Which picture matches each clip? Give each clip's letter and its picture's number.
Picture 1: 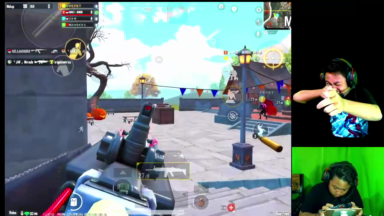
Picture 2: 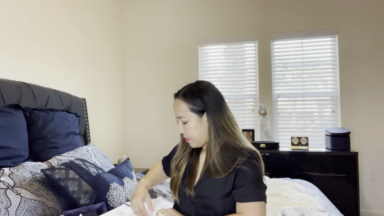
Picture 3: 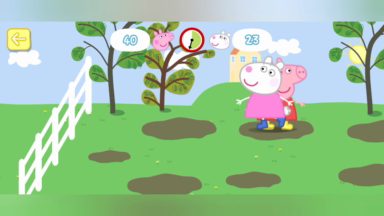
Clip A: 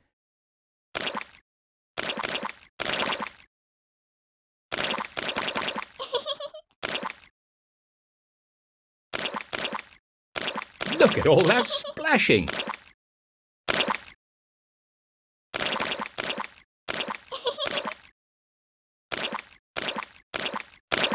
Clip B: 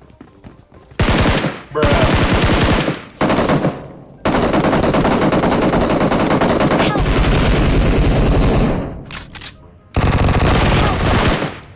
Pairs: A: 3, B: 1